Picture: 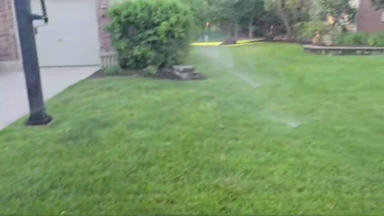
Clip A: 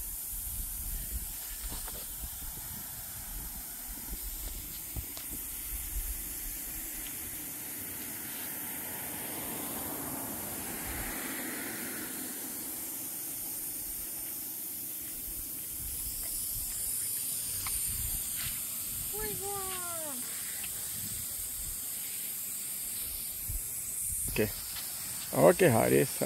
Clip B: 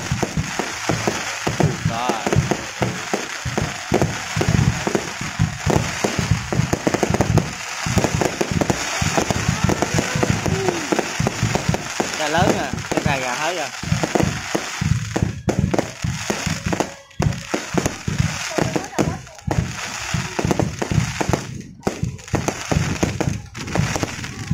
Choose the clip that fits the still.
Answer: A